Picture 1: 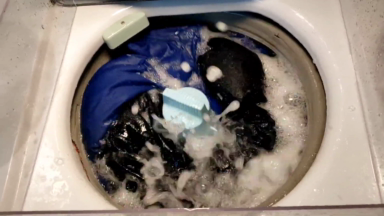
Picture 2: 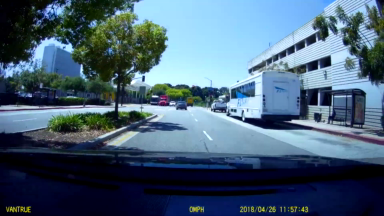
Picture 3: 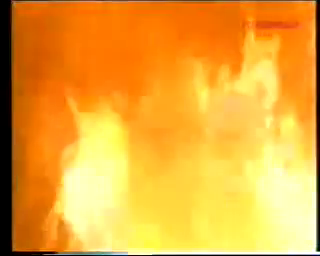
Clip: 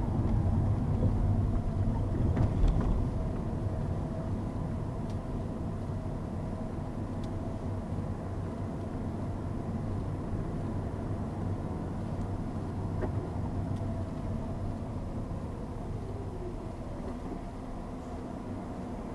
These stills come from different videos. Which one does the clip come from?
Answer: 2